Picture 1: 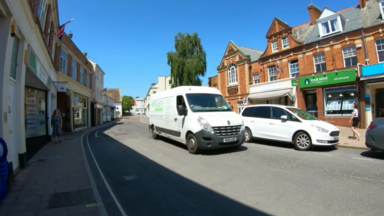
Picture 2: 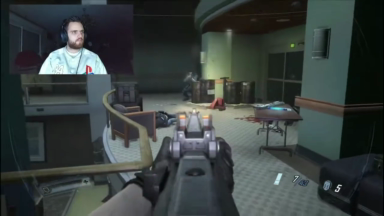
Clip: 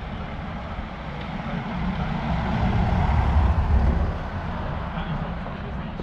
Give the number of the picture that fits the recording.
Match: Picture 1